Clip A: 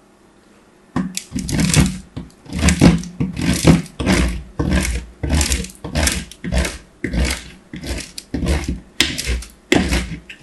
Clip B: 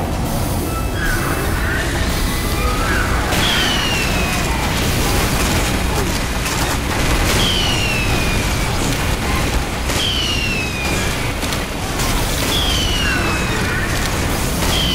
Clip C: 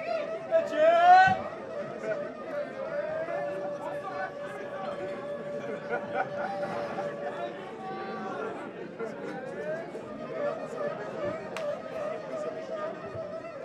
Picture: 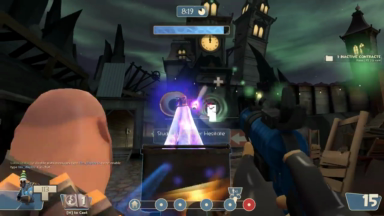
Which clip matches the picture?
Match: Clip B